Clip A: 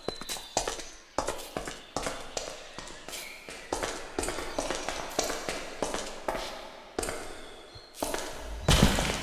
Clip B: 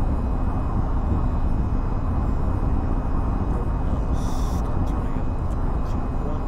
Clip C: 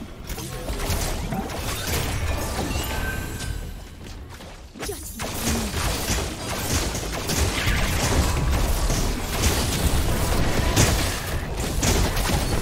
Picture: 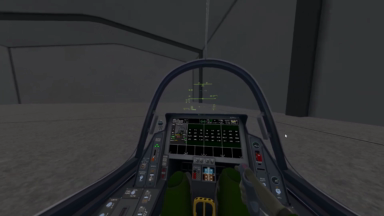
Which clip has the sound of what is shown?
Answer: B